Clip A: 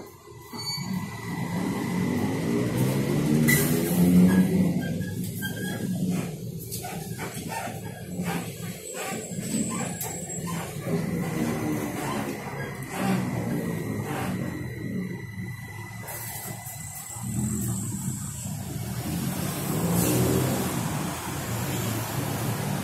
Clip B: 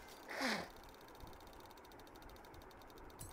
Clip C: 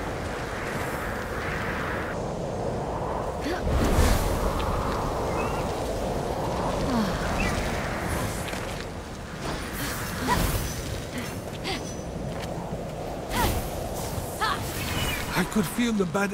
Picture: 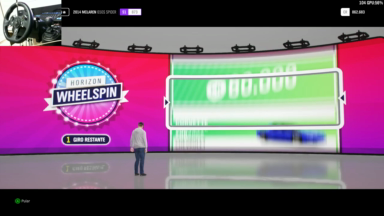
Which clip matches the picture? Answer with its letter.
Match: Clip B